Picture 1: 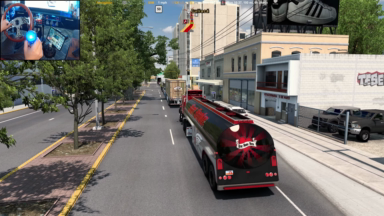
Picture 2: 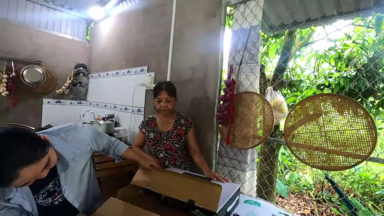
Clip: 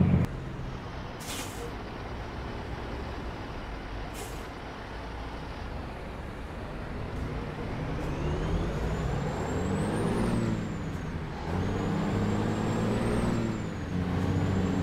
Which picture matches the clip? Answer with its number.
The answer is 1